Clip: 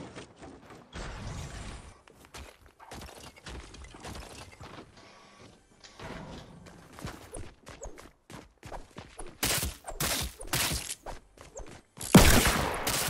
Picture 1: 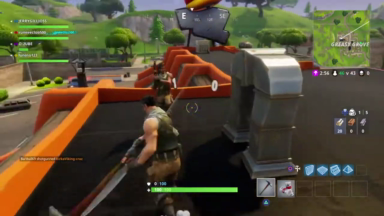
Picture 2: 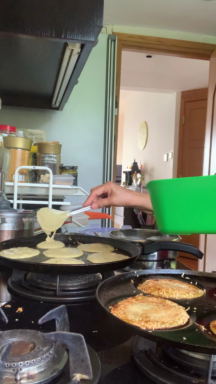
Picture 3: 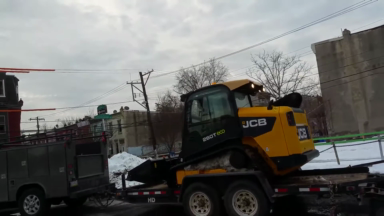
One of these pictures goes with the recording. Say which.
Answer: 1